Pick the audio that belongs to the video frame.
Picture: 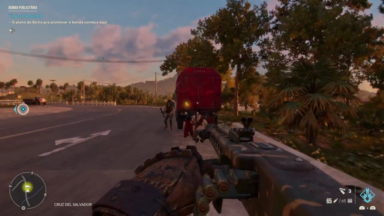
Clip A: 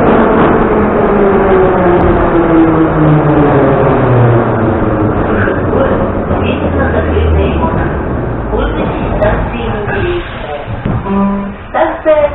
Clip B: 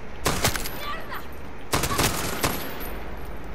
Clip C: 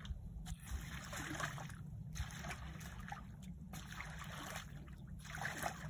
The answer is B